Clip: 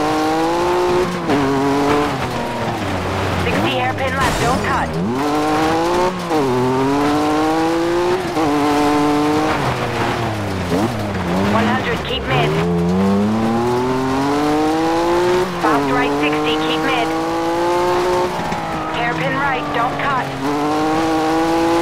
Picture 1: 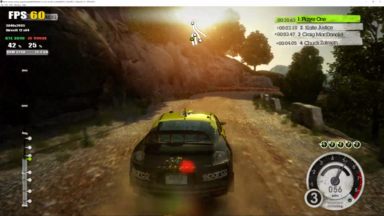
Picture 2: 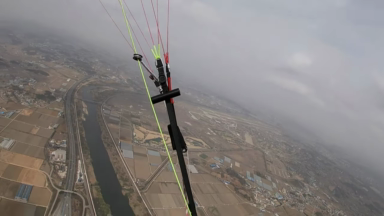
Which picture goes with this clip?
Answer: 1